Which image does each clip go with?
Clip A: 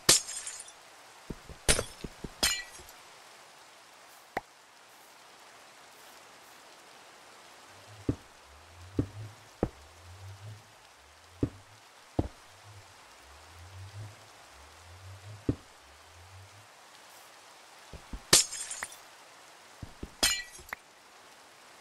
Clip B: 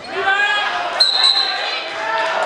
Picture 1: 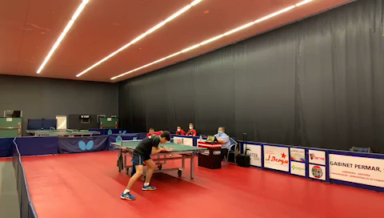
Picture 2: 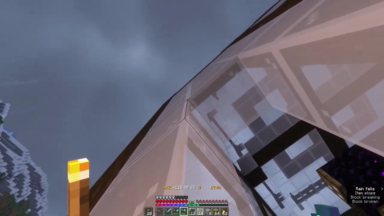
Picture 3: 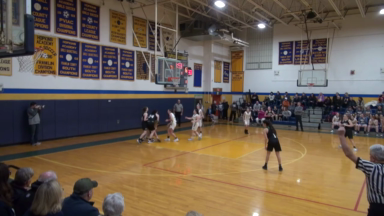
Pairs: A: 2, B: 3